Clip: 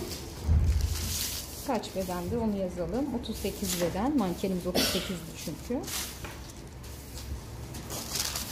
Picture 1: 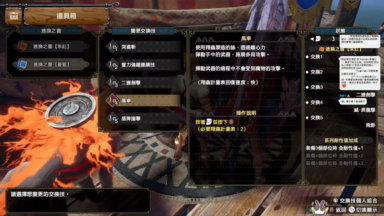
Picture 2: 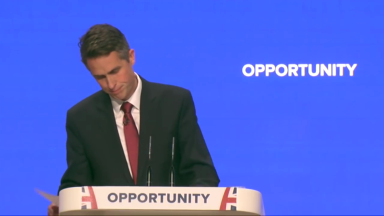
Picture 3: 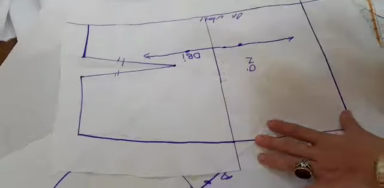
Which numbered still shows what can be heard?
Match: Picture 3